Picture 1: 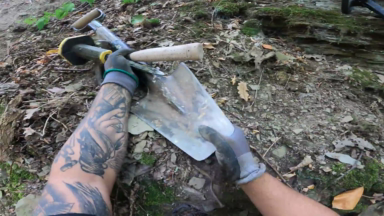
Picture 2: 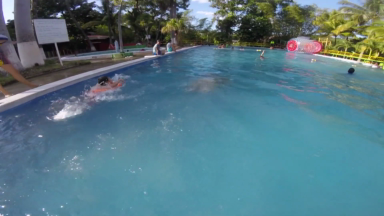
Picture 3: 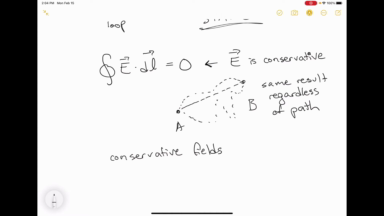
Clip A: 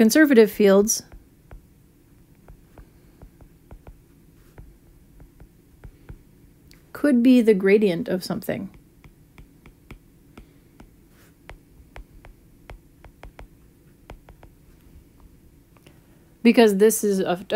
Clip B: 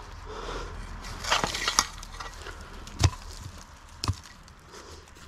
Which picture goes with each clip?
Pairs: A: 3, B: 1